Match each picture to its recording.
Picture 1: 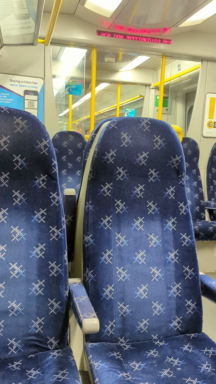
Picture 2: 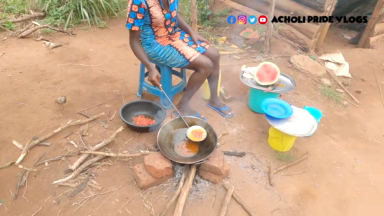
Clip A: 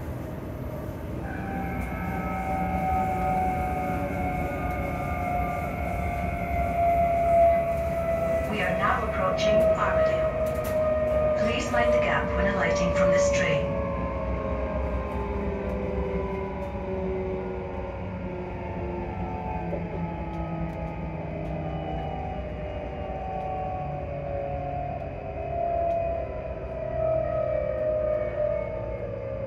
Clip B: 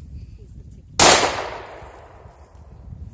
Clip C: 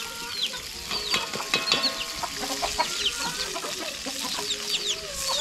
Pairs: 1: A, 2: C